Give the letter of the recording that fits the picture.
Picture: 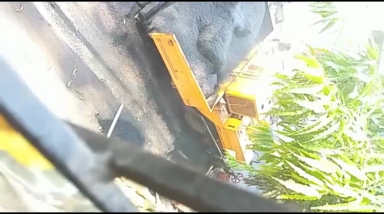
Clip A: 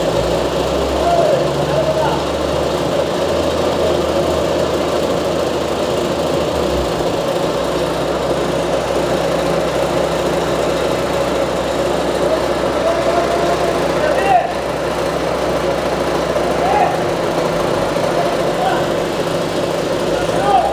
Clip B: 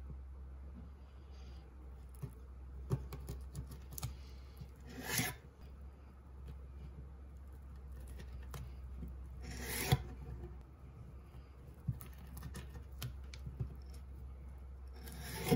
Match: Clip A